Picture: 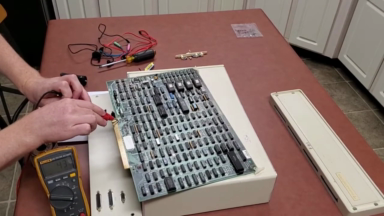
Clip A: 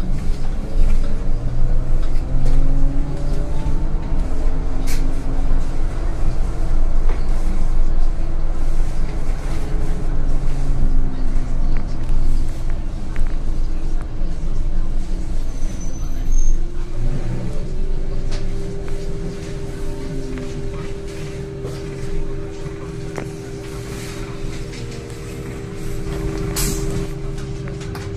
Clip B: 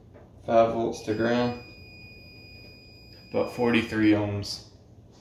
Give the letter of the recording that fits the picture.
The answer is B